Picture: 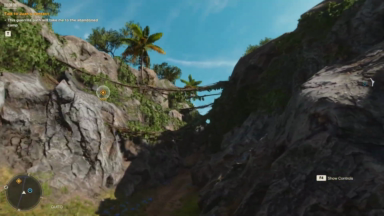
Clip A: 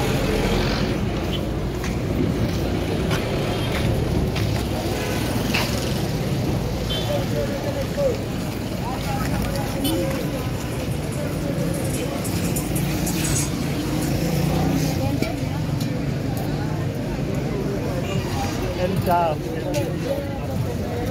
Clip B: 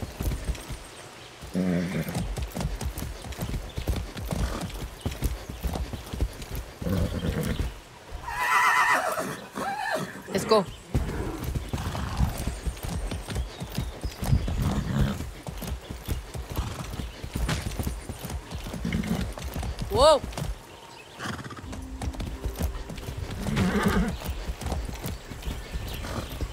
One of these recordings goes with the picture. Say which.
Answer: B